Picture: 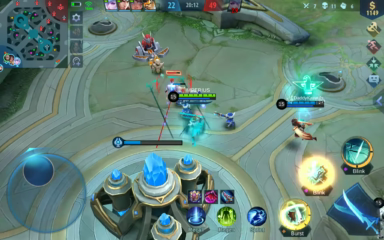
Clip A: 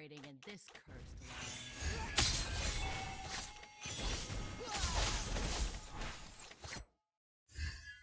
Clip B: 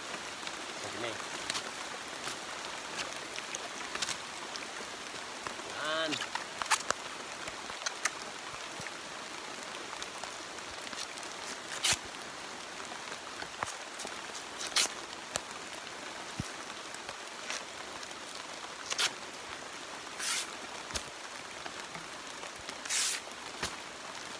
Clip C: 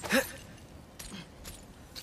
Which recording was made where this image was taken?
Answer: A